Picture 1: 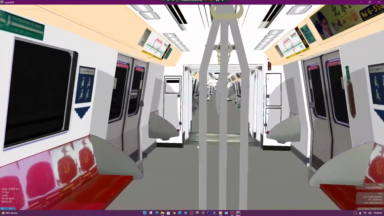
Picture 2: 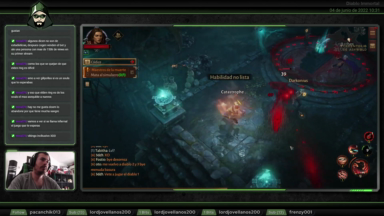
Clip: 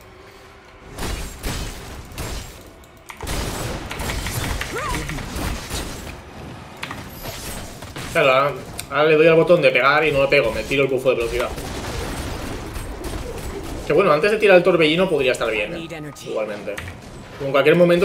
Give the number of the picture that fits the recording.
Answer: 2